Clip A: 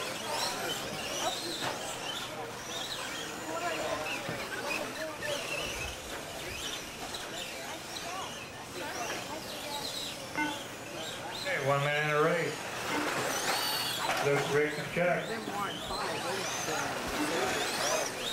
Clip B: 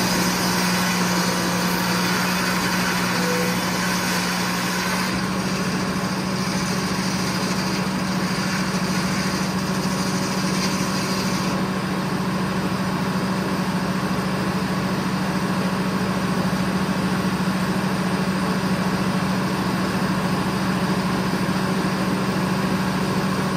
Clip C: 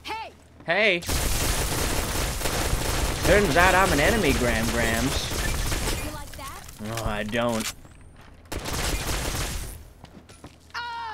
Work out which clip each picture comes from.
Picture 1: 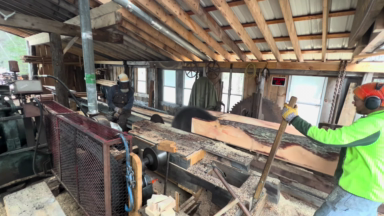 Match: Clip B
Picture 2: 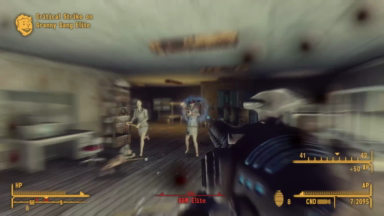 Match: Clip C